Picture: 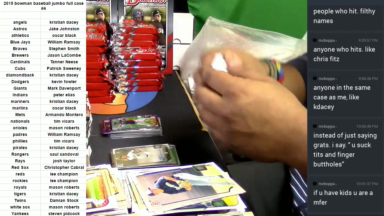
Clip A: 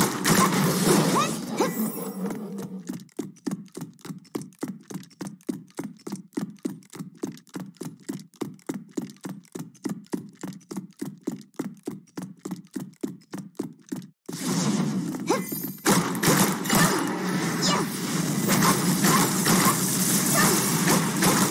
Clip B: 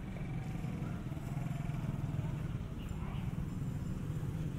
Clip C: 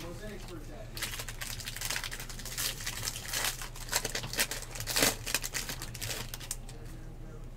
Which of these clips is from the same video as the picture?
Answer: C